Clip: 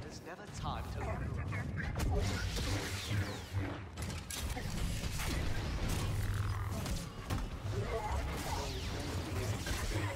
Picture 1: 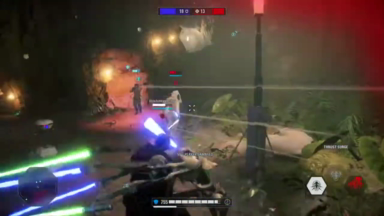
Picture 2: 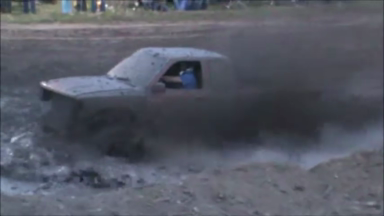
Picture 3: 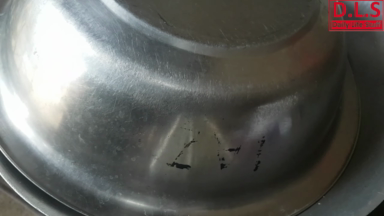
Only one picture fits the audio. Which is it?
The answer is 1